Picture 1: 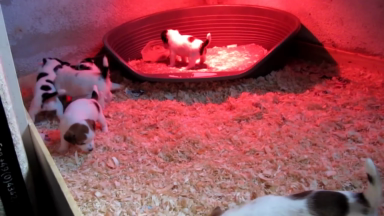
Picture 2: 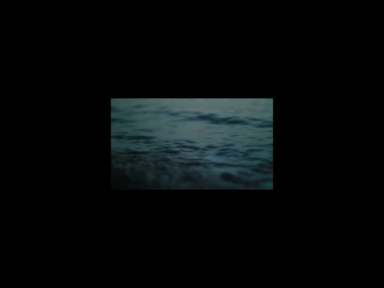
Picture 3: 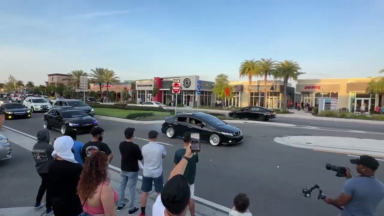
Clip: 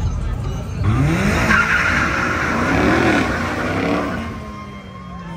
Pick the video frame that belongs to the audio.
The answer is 3